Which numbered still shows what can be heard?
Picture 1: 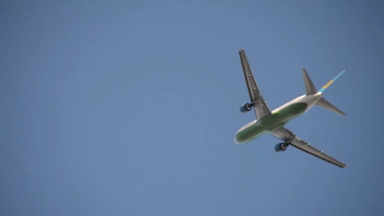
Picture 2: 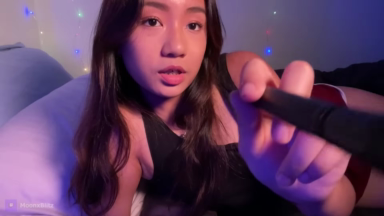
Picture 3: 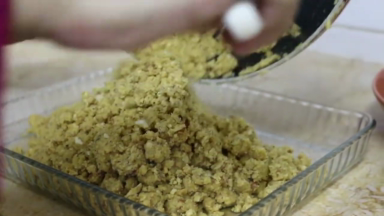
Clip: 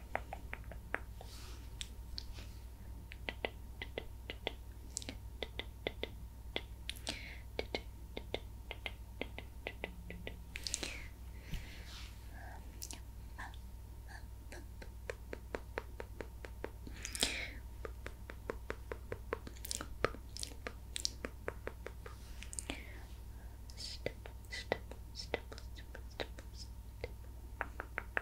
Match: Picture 2